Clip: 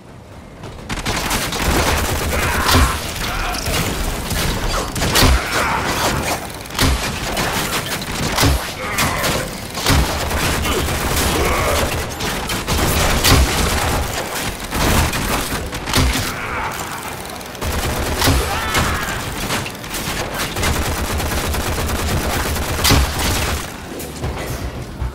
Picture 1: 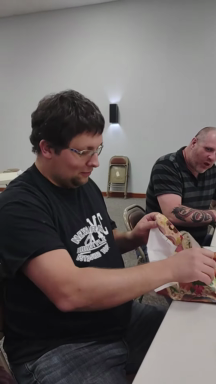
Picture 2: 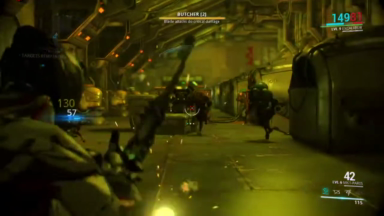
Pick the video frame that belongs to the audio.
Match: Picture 2